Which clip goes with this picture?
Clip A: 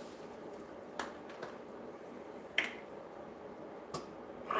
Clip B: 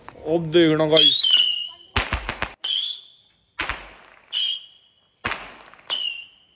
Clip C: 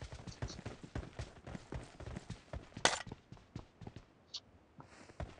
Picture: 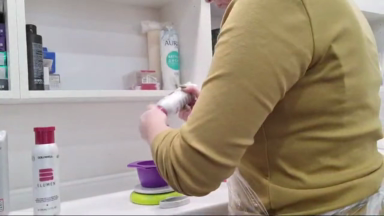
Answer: A